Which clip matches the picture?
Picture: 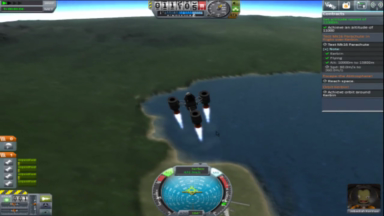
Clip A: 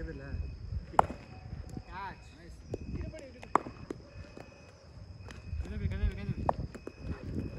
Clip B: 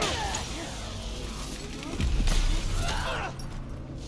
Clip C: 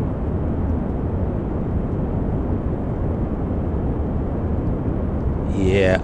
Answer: C